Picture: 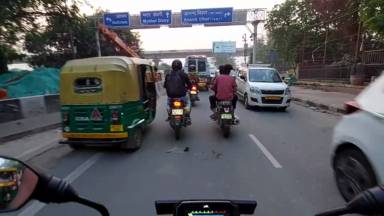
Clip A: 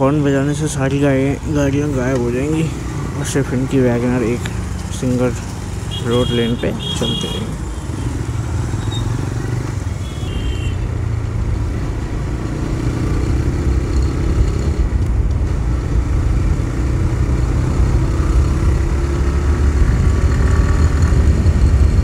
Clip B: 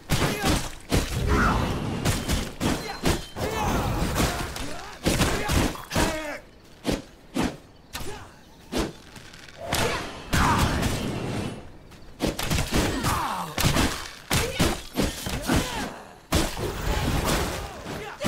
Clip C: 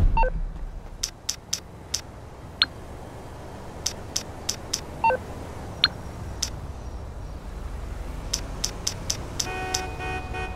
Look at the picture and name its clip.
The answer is A